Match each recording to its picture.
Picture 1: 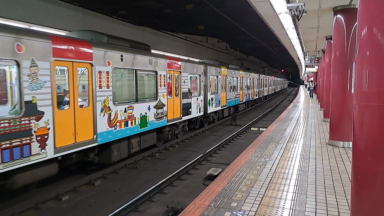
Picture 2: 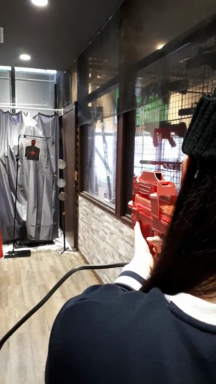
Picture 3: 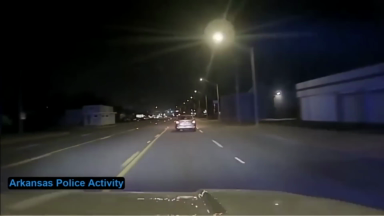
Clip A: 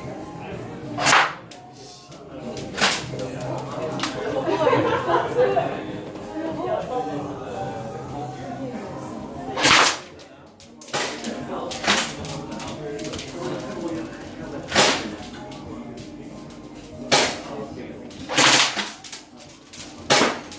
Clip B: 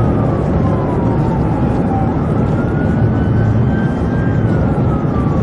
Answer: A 2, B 3